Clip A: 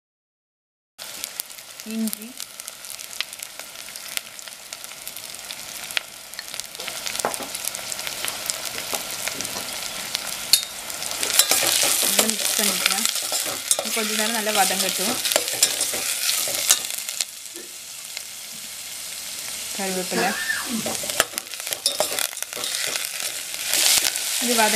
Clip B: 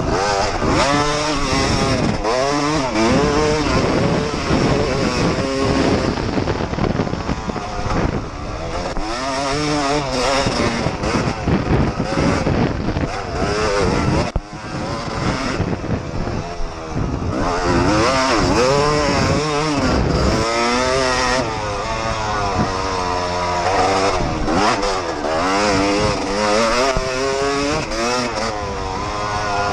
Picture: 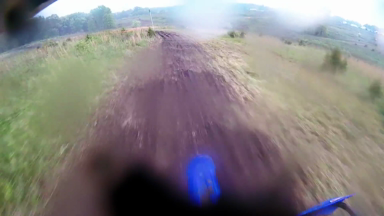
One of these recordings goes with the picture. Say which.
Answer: B